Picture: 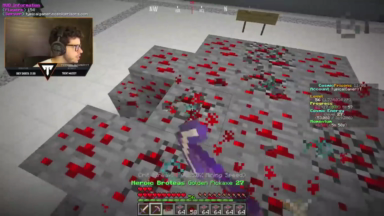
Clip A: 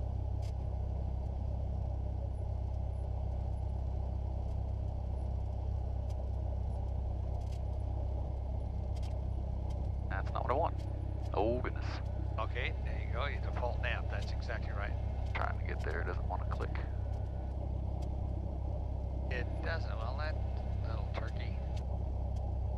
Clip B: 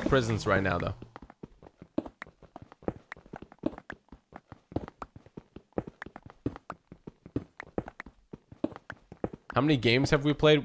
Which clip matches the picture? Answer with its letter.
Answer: B